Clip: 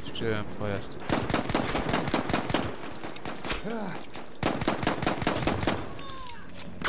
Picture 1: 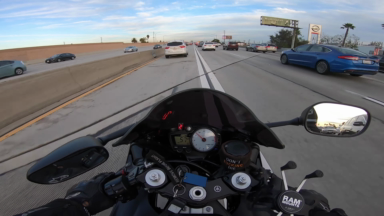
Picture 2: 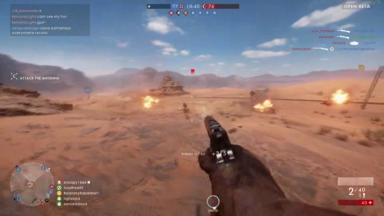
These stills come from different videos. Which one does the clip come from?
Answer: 2